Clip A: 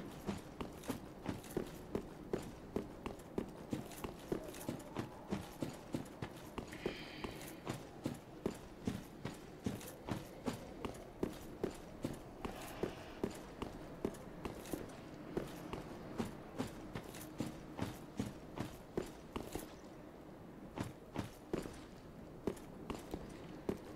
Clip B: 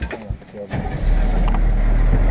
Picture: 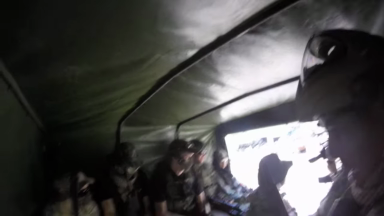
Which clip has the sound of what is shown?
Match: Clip B